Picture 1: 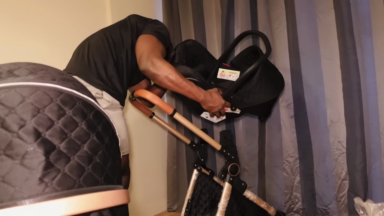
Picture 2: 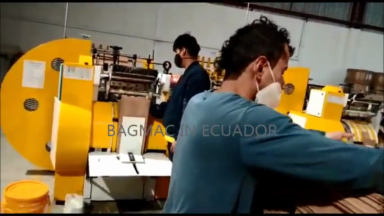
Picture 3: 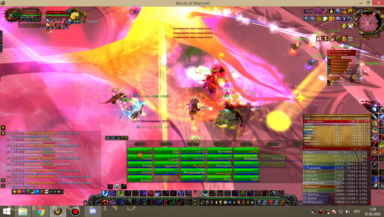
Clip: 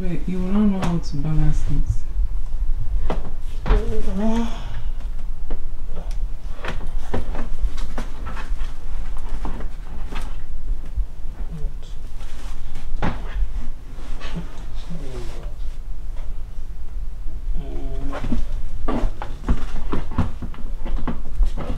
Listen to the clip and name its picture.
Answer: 1